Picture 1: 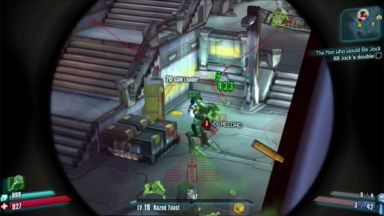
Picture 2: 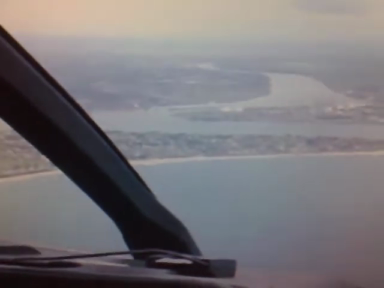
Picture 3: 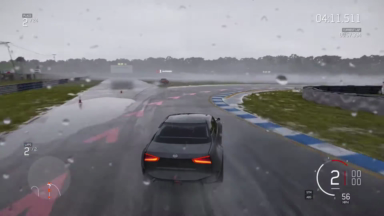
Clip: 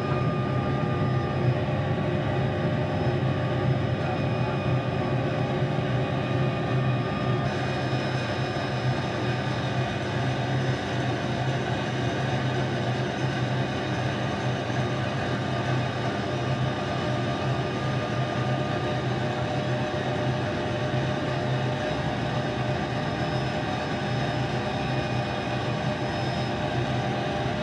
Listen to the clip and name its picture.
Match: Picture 2